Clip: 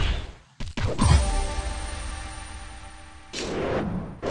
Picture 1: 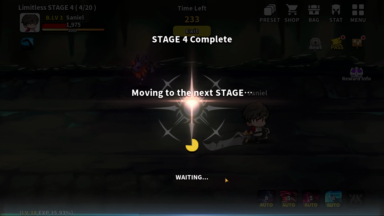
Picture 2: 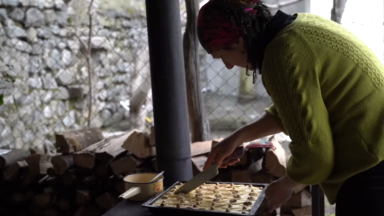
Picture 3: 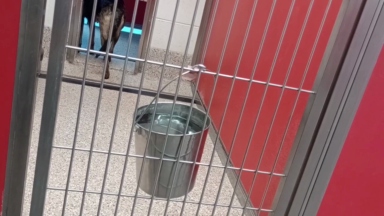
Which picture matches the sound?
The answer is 1